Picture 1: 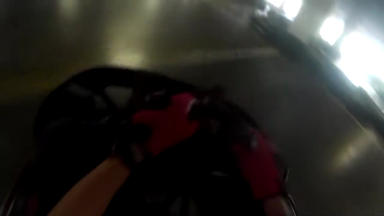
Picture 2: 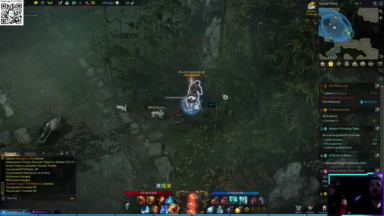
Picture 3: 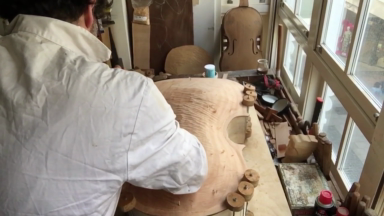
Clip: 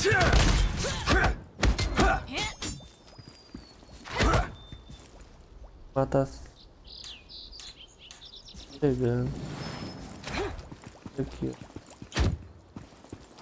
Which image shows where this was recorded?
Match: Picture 2